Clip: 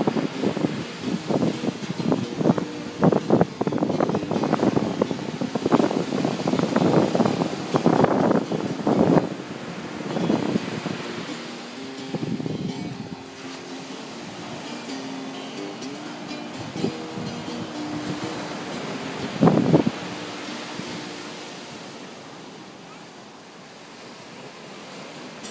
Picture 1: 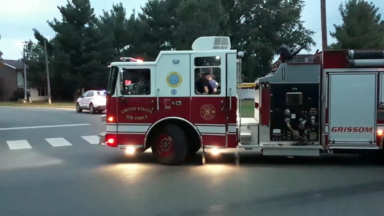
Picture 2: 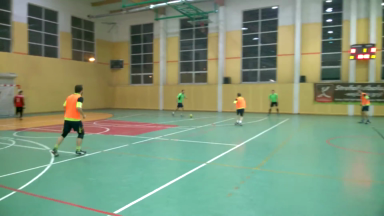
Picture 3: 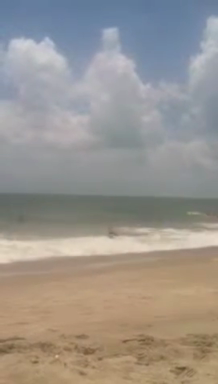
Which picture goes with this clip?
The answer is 3